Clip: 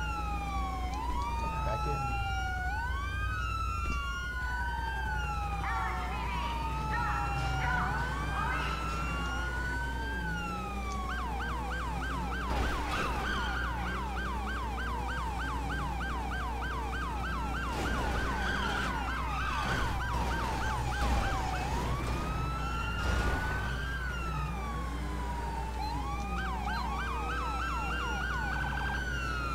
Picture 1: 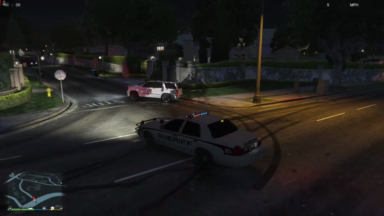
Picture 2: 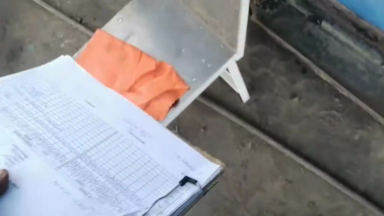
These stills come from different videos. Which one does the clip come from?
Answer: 1